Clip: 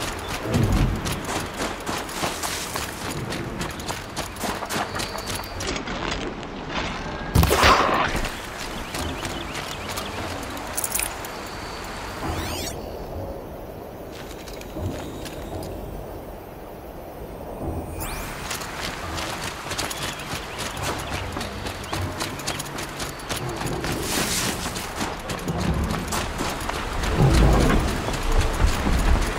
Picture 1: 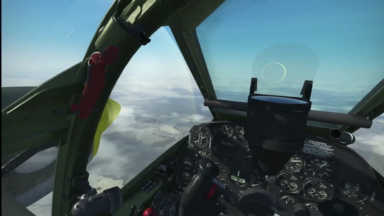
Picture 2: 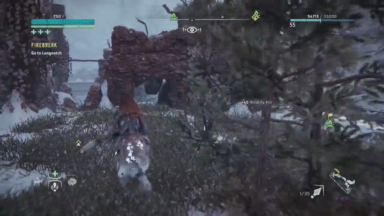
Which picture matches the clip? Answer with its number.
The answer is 2